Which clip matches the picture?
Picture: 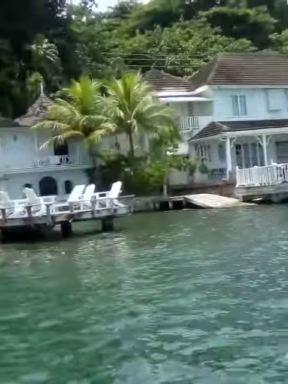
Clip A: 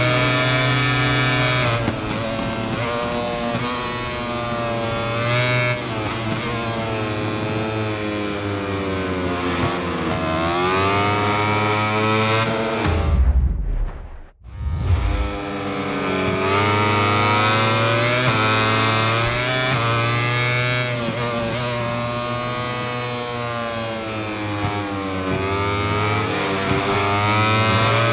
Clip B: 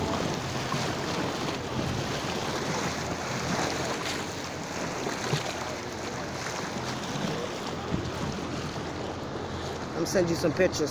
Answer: B